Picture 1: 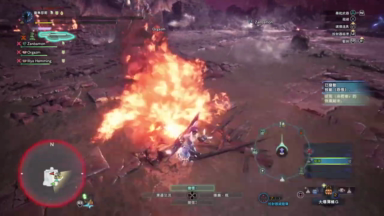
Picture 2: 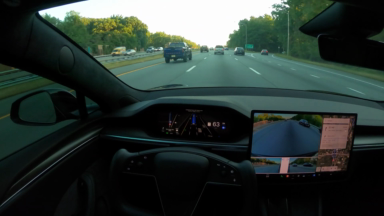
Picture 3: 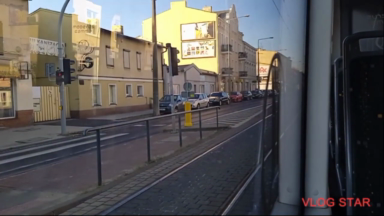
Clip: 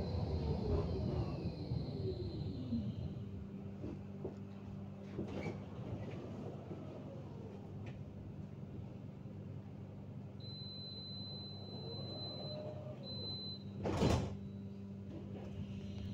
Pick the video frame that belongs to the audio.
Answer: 3